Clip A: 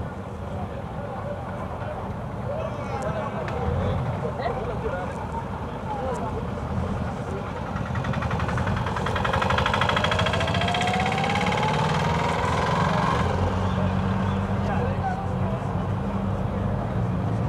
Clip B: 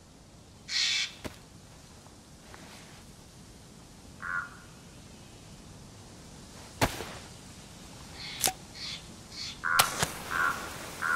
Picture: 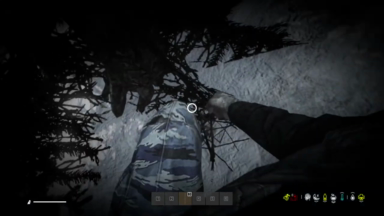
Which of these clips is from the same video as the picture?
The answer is B